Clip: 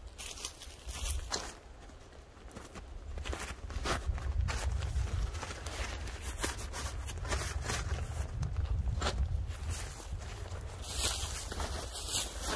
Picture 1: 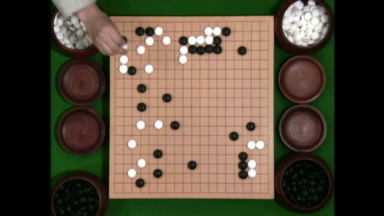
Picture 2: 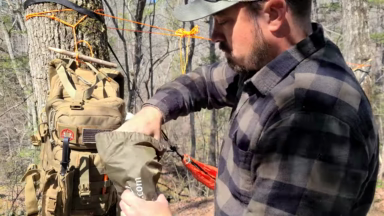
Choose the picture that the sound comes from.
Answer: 2